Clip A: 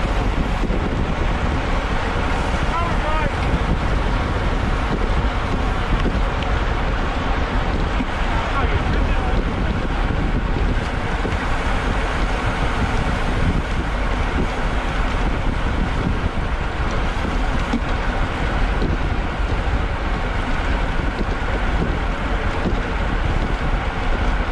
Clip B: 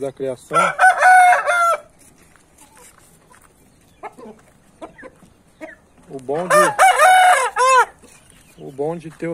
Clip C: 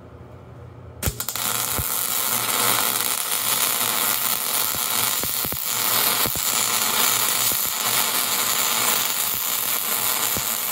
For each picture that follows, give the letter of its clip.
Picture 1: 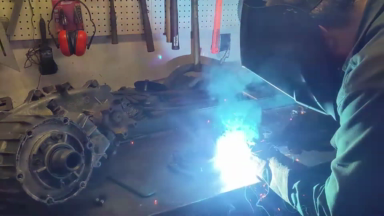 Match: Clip C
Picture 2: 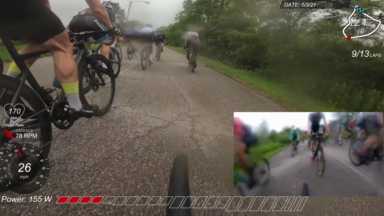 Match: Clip A